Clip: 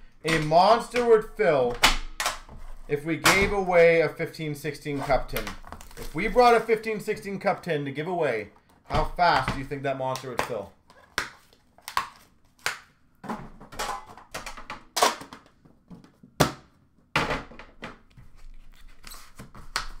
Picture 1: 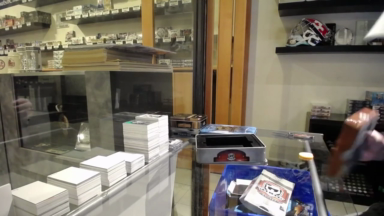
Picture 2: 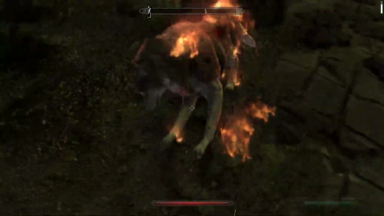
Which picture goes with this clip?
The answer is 1